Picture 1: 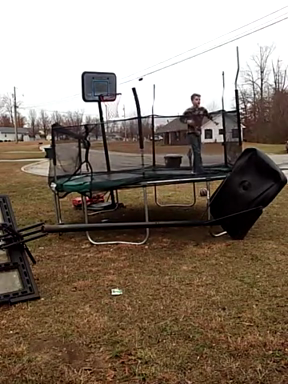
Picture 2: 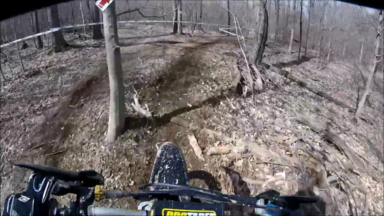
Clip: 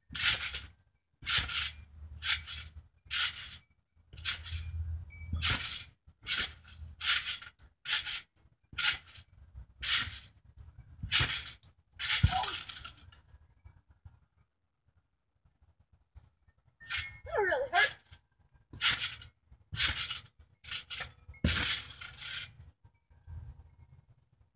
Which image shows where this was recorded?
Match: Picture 1